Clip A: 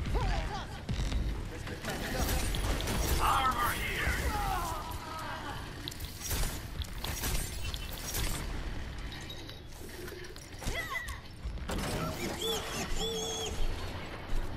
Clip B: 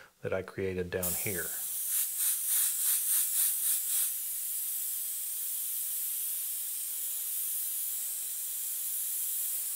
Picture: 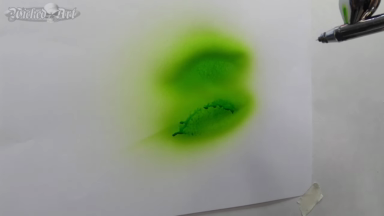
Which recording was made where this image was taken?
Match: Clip B